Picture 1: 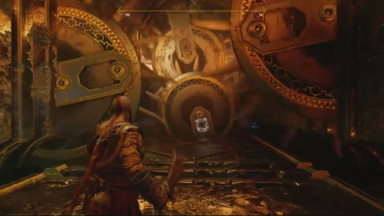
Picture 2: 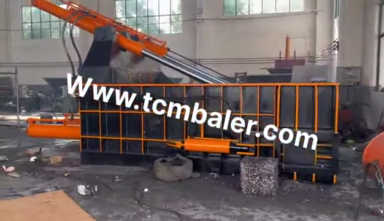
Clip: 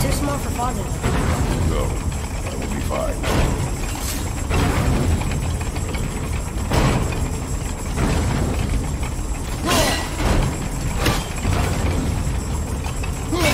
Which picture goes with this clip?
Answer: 1